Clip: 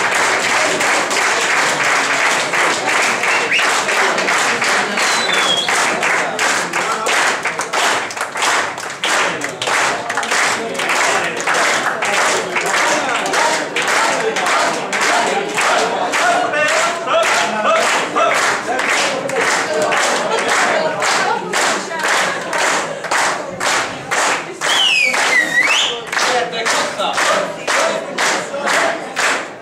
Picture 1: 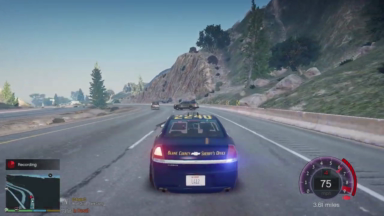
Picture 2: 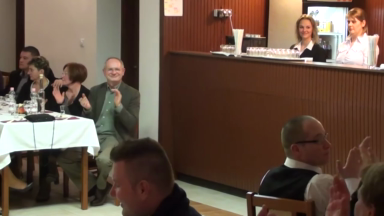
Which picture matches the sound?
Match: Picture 2